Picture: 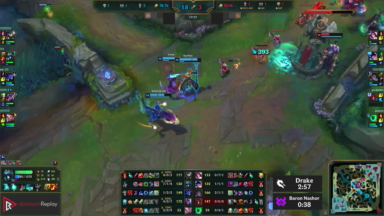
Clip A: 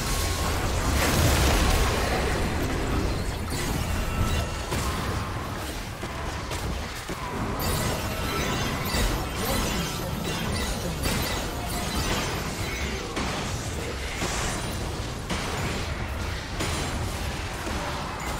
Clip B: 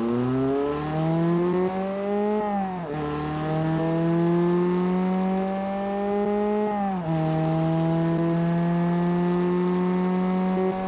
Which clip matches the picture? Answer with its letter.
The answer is A